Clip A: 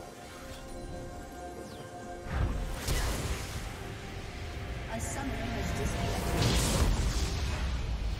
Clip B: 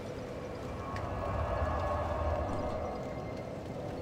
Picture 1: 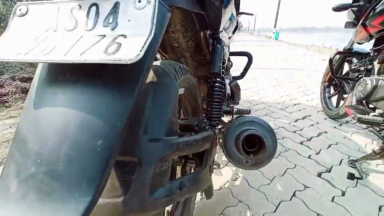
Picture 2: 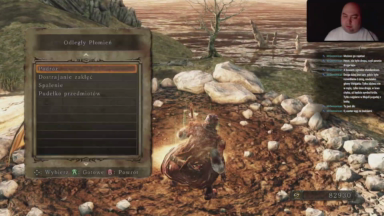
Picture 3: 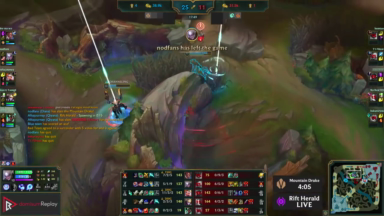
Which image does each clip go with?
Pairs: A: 3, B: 2